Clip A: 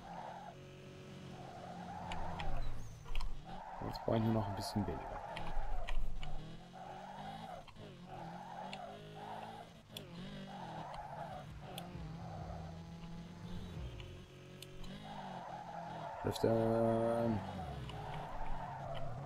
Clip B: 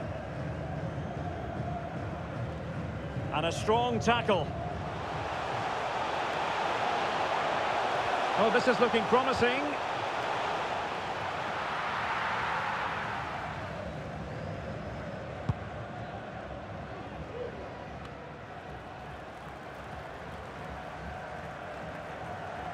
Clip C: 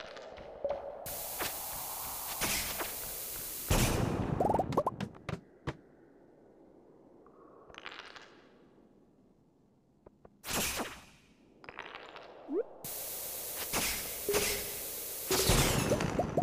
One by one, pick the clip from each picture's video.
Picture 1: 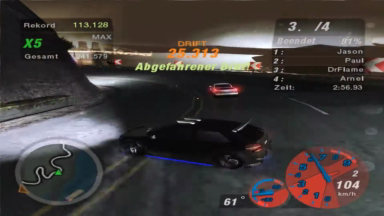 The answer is A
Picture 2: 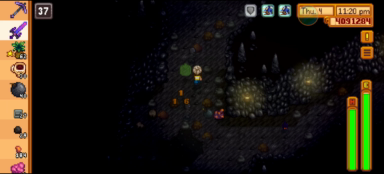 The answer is C